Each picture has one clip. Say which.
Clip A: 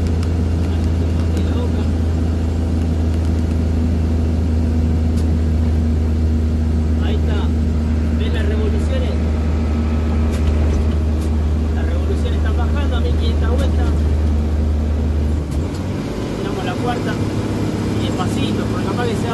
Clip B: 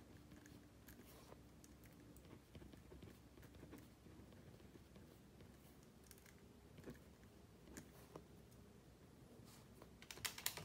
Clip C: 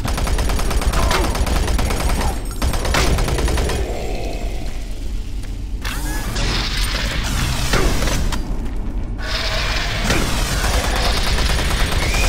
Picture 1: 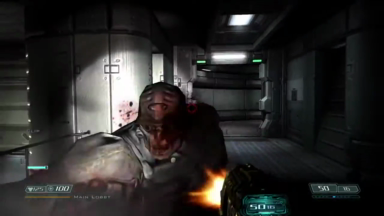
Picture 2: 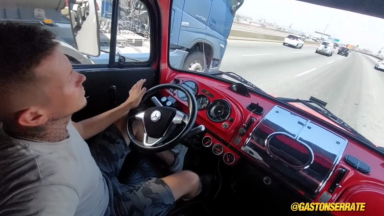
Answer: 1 C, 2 A